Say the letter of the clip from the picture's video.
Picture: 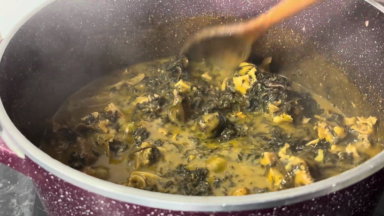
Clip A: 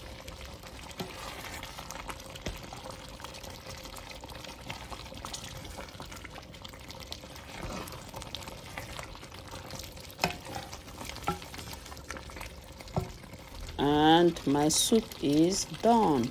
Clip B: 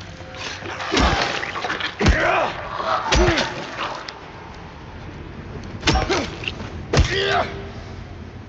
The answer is A